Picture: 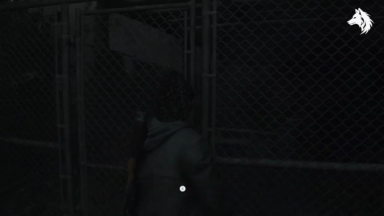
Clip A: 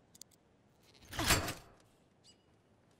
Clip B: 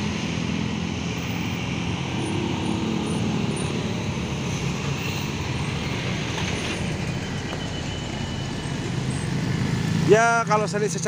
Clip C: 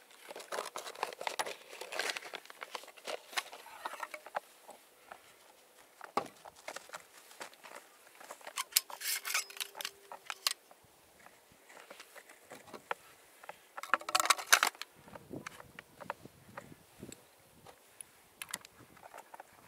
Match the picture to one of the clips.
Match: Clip A